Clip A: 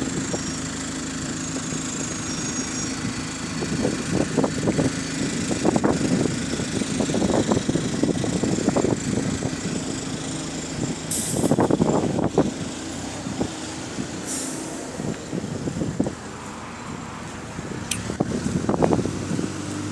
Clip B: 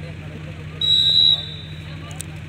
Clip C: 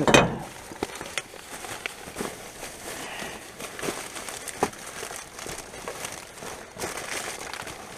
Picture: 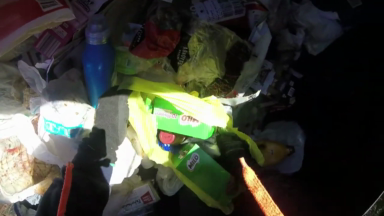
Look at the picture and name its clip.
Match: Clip C